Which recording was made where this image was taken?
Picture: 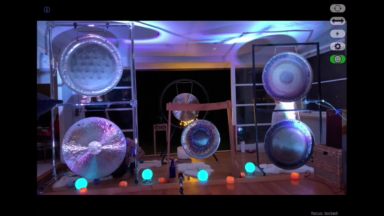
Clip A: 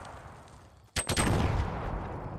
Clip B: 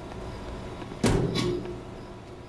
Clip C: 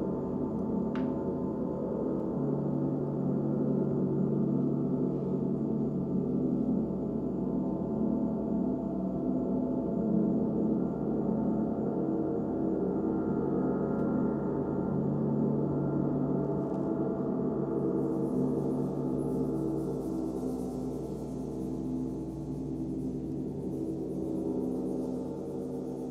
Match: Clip C